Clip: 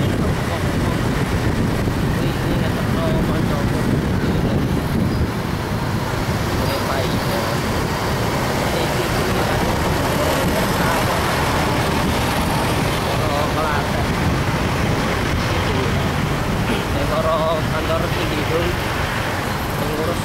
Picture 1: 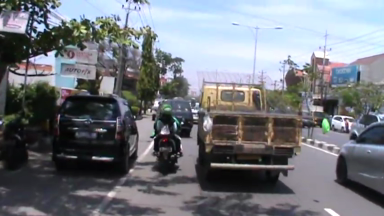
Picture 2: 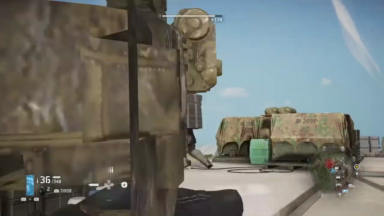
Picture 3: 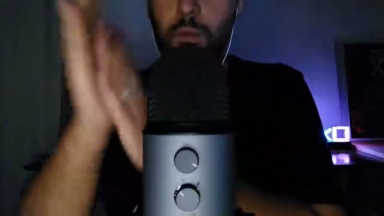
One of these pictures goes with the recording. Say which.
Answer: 1